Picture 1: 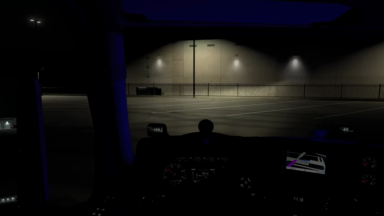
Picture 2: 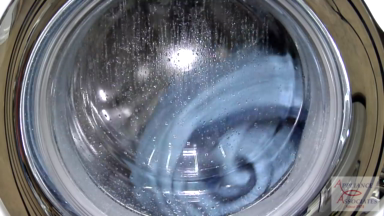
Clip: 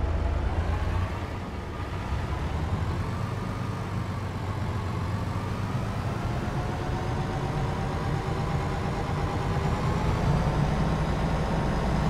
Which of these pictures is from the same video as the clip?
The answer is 1